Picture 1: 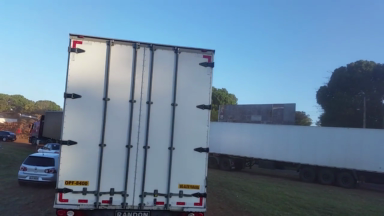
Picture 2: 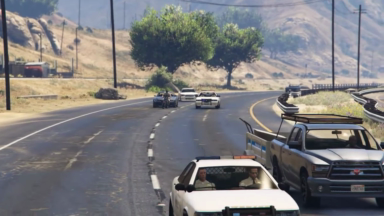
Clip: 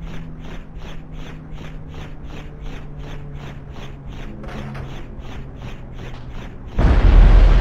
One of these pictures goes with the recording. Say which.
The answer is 2